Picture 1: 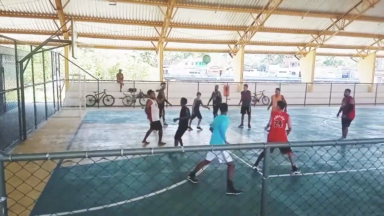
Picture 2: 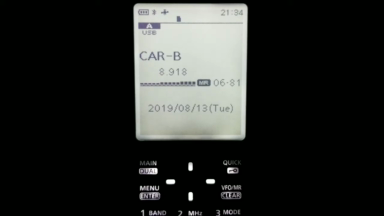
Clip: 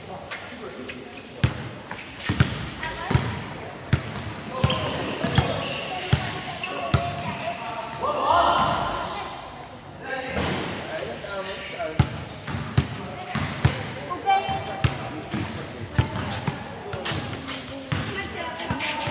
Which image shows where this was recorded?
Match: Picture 1